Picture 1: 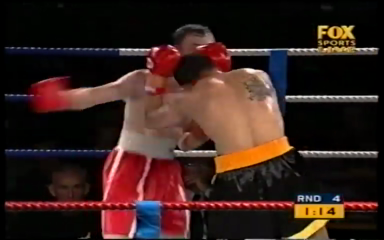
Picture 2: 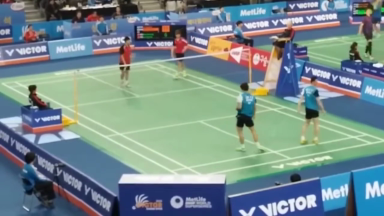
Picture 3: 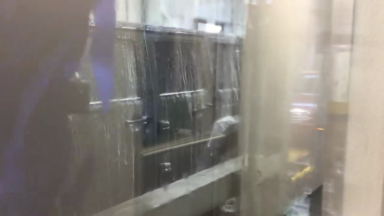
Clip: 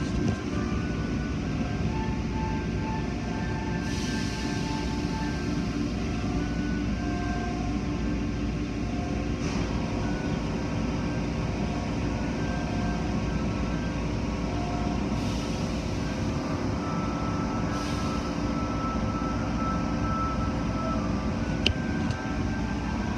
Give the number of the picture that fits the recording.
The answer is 3